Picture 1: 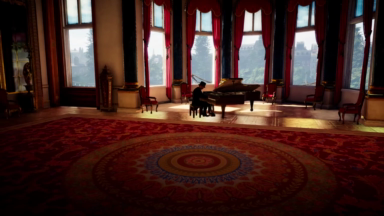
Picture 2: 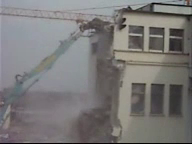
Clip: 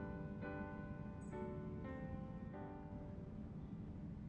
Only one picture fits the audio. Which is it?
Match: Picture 1